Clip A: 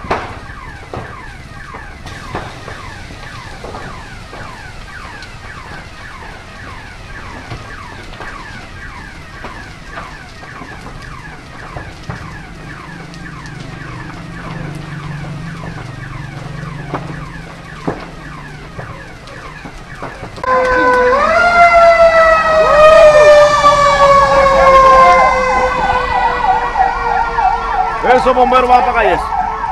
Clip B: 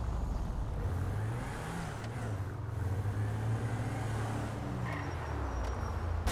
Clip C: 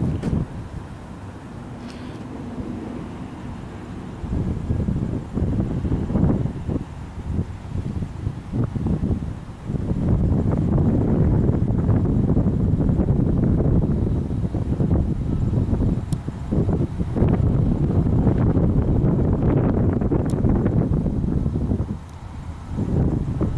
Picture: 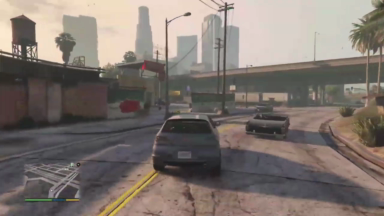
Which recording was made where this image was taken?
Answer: B